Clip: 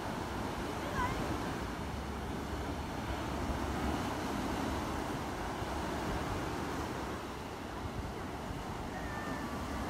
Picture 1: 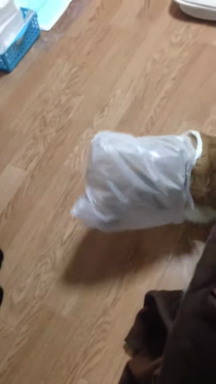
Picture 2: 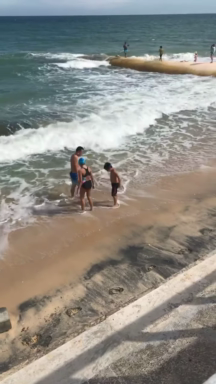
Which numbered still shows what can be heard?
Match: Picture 2